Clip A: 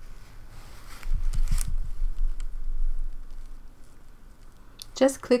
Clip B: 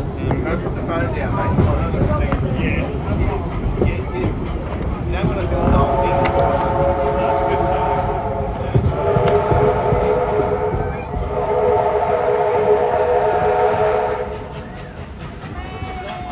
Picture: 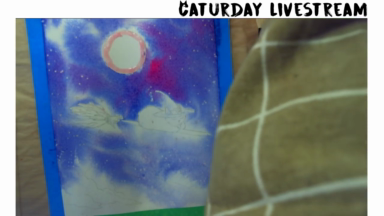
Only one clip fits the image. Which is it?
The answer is A